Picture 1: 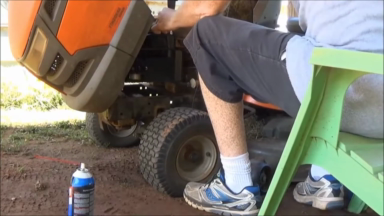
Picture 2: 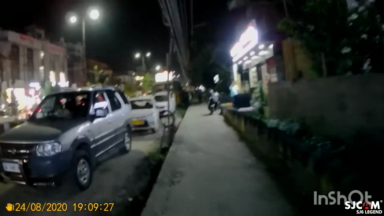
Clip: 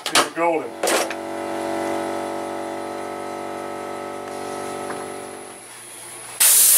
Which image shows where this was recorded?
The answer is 1